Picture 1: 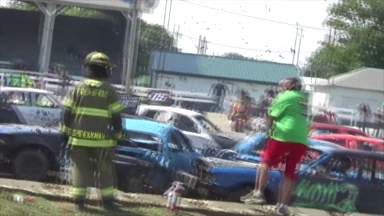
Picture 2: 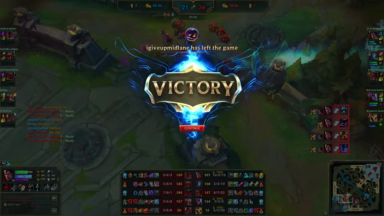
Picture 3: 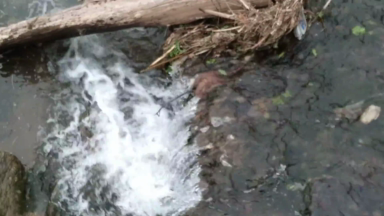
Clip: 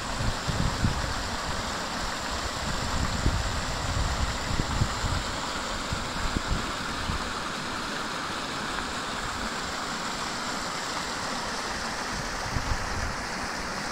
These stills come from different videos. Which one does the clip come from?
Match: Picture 3